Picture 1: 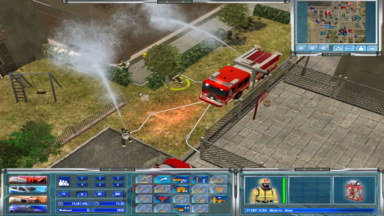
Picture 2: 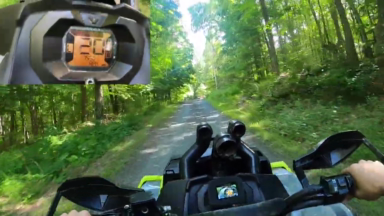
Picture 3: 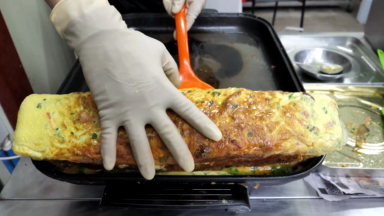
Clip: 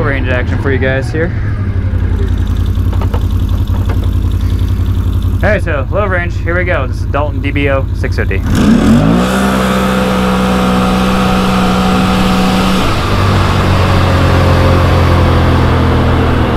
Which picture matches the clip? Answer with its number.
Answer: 2